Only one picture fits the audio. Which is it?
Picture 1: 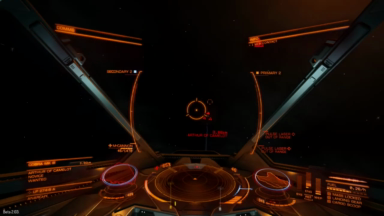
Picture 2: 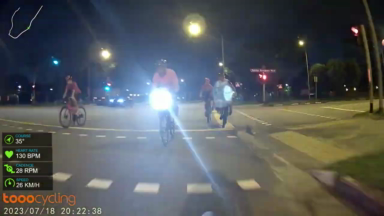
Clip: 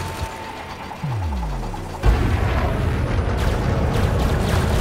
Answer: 1